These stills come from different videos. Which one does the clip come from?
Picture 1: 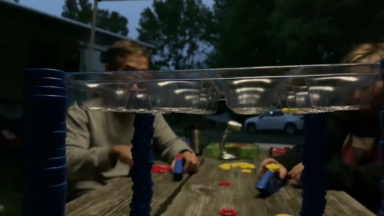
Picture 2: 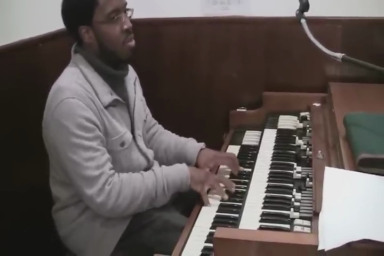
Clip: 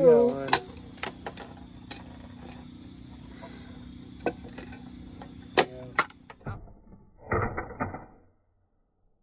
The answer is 1